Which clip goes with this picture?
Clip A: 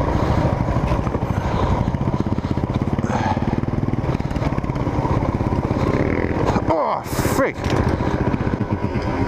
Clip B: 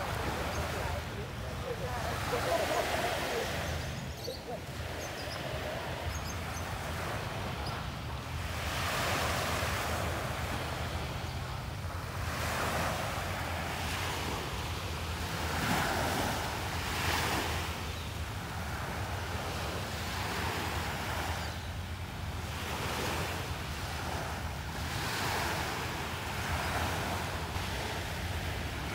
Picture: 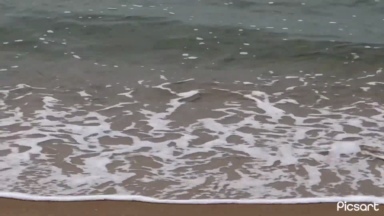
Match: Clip B